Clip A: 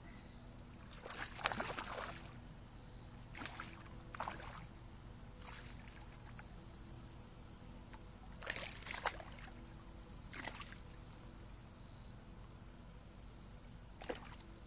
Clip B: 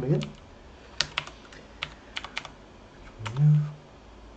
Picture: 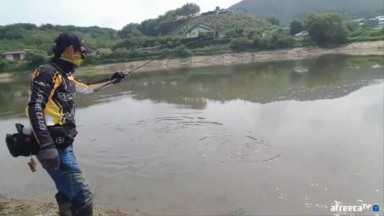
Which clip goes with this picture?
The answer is A